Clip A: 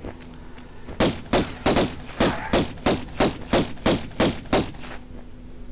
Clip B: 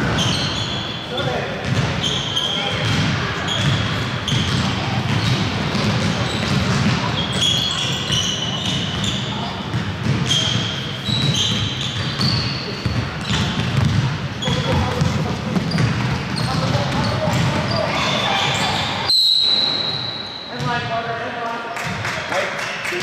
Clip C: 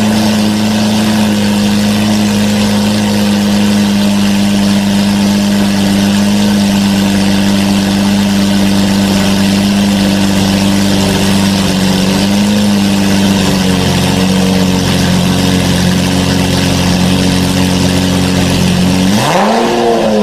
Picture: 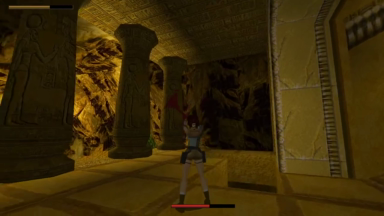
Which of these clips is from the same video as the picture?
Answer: A